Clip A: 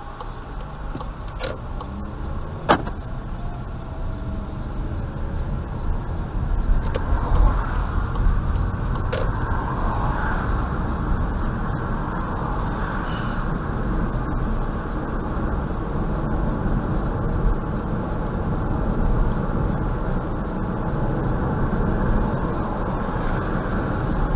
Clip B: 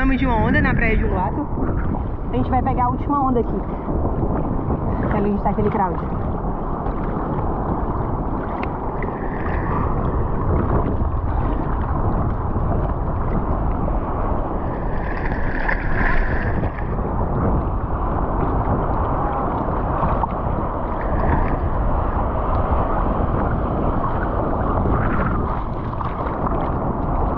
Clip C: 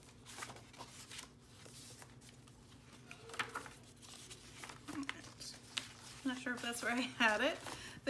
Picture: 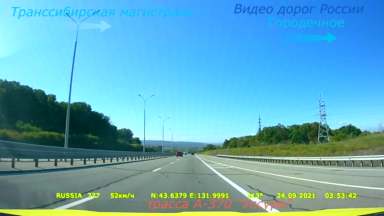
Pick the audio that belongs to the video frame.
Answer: A